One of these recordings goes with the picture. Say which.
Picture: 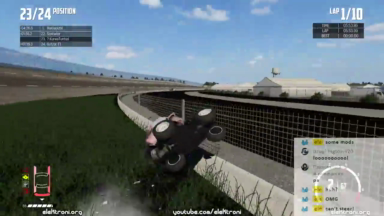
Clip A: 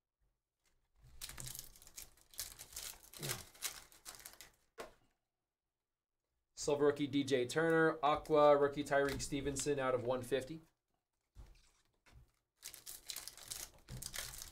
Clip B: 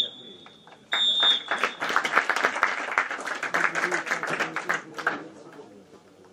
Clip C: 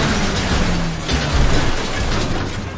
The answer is C